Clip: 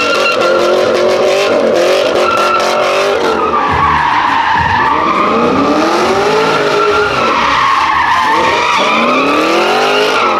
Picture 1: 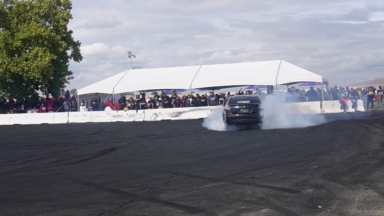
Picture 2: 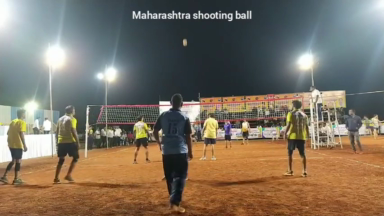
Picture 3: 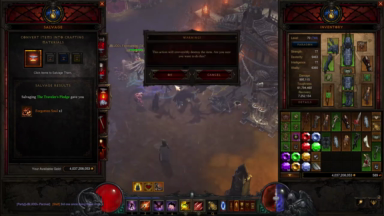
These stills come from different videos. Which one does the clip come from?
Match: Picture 1